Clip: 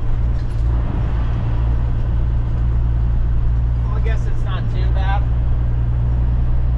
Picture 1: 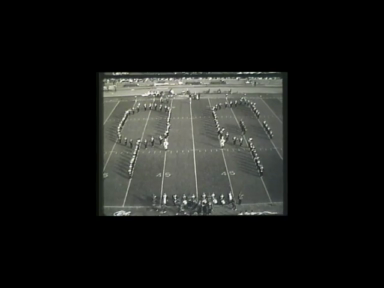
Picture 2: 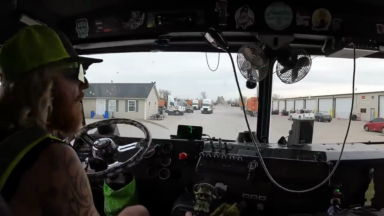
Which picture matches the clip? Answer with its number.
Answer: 2